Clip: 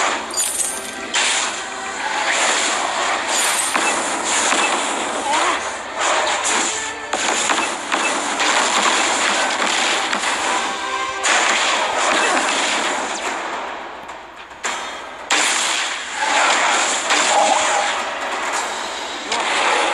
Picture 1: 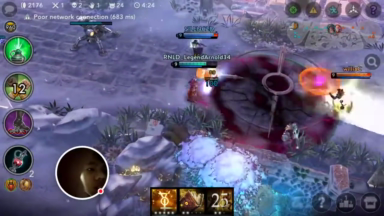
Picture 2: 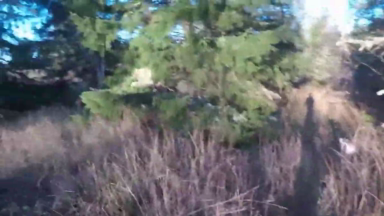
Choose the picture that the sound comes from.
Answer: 1